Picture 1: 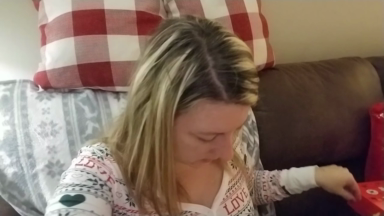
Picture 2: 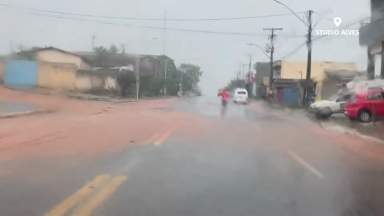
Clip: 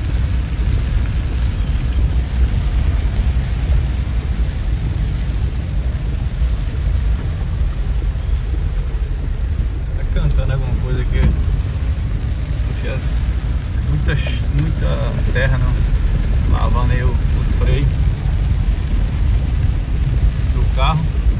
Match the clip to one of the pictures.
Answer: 2